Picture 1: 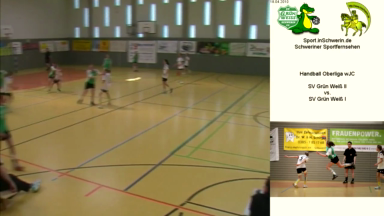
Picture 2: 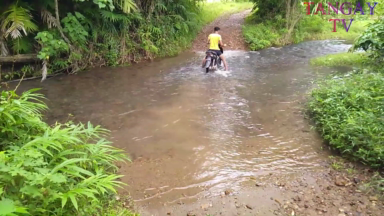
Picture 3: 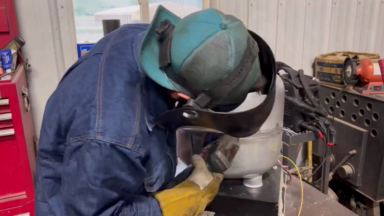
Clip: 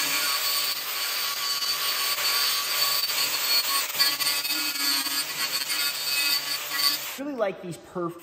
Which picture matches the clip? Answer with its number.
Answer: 3